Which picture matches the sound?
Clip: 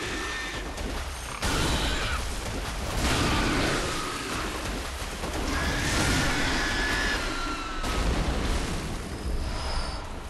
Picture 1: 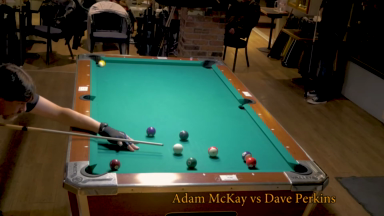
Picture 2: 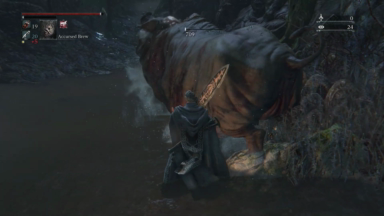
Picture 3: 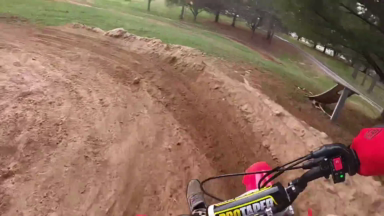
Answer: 2